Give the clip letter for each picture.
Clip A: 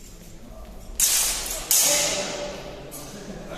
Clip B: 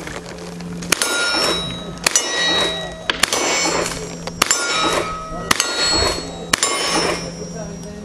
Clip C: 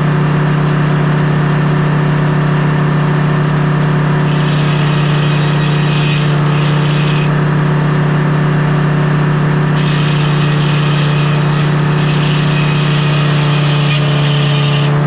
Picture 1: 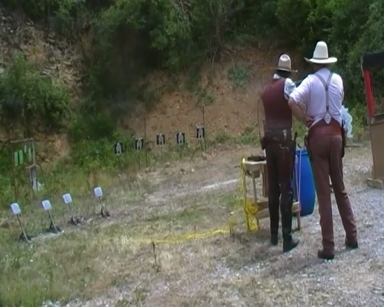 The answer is B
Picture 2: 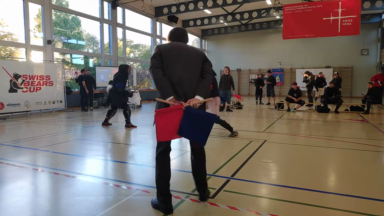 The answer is A